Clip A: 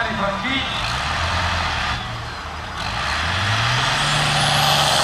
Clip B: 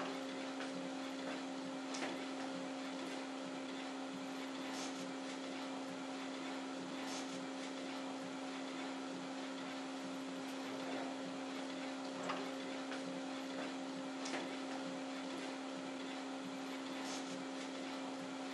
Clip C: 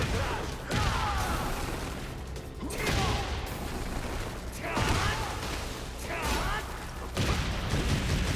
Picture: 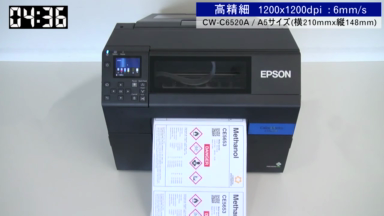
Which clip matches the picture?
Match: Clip B